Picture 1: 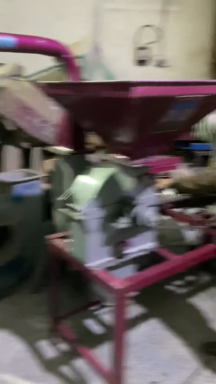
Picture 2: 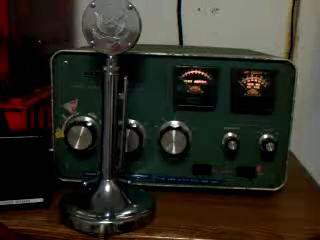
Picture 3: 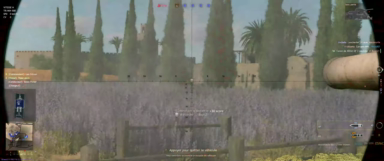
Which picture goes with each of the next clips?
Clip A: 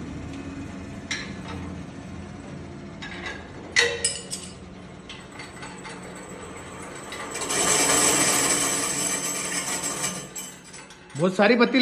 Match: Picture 1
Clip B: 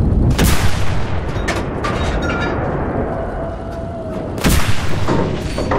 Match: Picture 3